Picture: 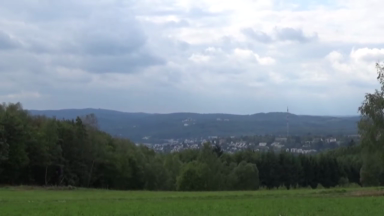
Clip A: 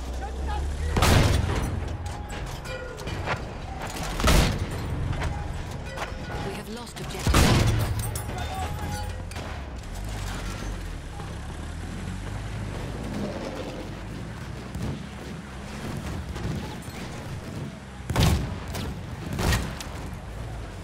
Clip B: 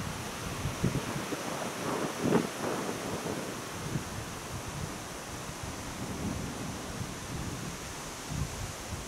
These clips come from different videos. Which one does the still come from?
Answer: B